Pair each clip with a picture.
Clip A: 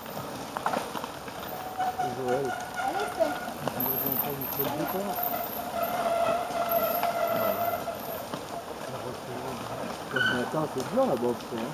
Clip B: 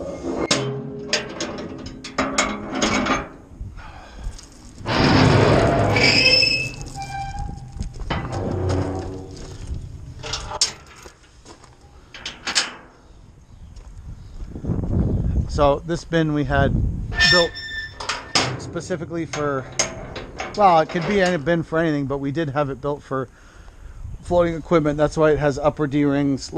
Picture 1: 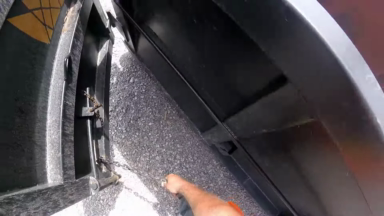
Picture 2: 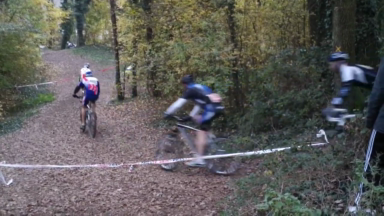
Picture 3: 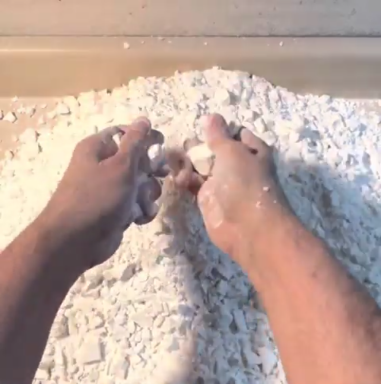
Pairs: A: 2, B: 1